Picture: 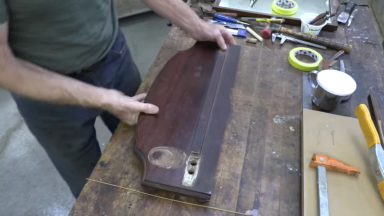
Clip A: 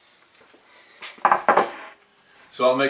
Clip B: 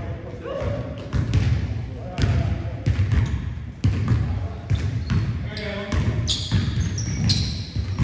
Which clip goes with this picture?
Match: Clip A